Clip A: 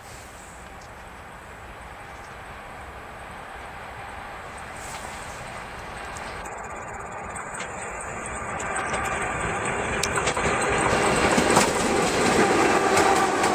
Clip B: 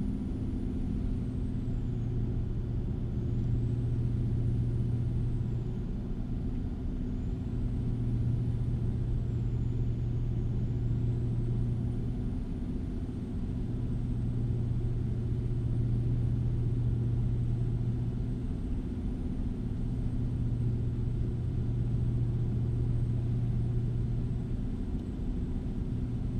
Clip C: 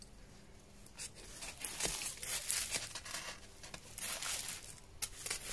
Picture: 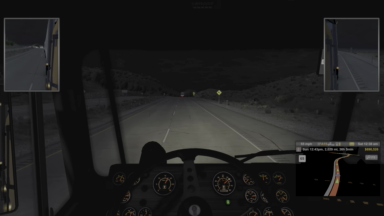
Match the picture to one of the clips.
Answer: B